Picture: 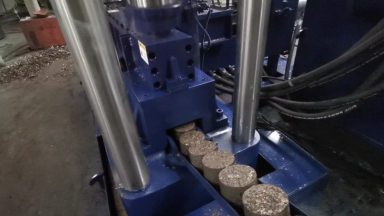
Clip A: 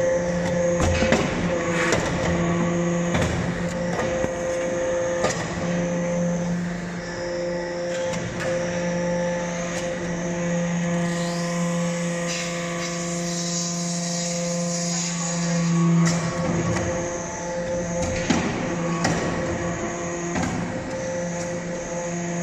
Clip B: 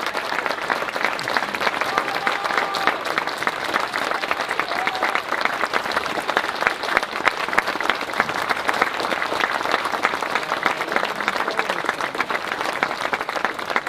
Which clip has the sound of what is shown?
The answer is A